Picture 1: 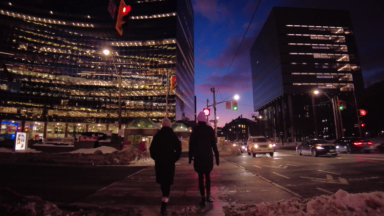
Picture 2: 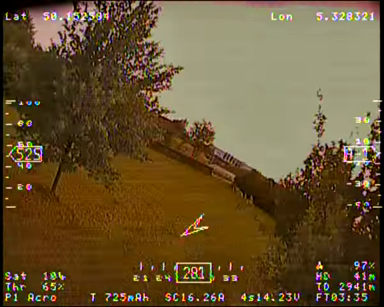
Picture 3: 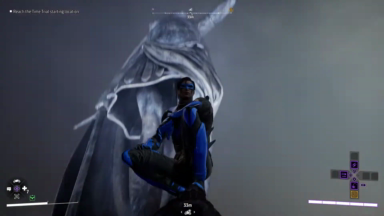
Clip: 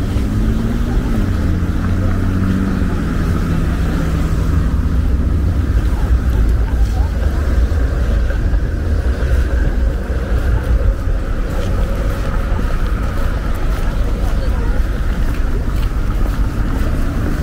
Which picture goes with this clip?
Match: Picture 1